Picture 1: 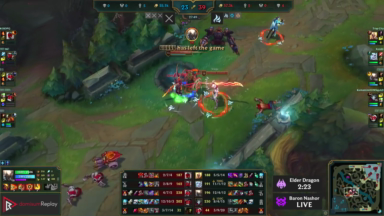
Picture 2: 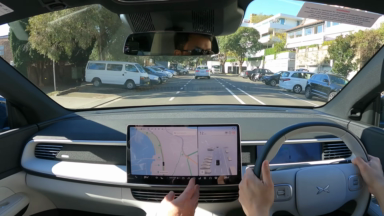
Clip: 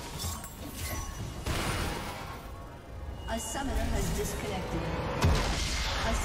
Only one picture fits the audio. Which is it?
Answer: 1